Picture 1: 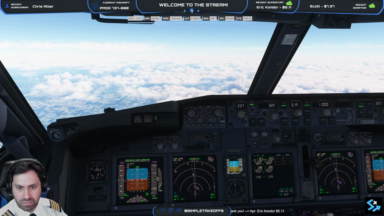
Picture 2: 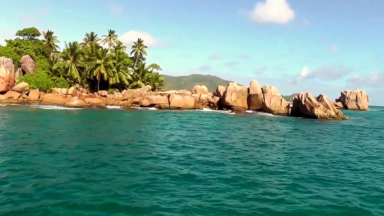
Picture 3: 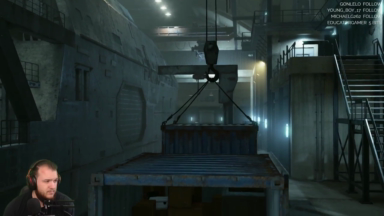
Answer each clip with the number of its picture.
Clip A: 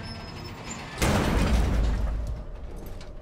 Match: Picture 3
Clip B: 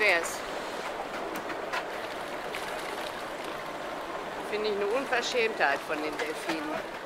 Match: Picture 2